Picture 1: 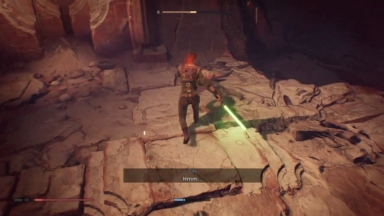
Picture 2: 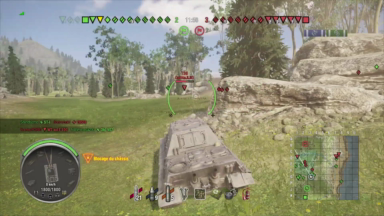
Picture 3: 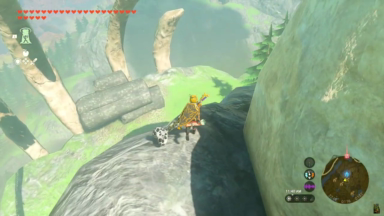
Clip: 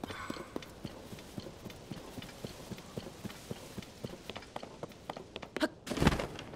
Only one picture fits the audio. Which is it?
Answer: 3